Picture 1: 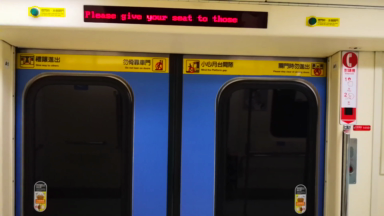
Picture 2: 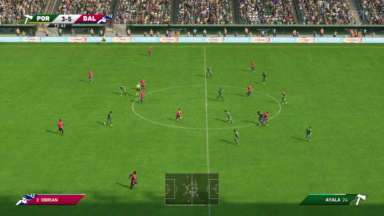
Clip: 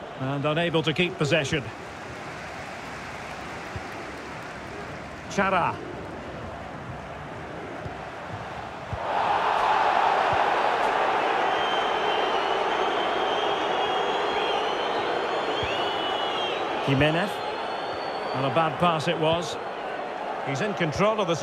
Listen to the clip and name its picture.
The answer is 2